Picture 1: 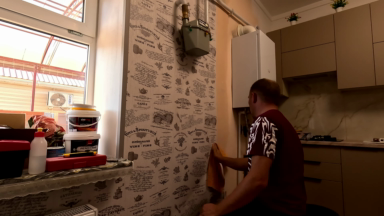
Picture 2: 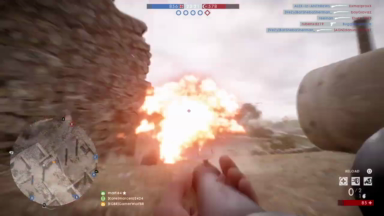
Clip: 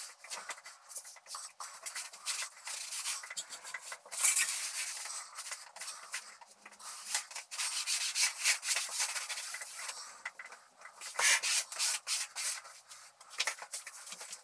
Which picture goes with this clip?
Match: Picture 1